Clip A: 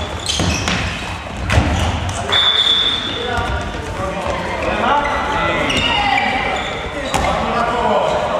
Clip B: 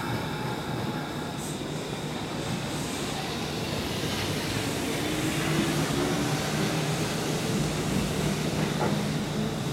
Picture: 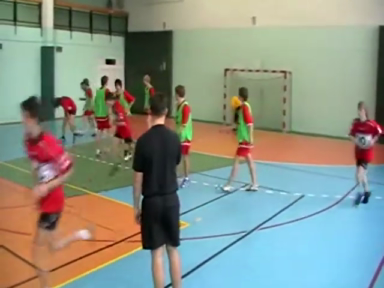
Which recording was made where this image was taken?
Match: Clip A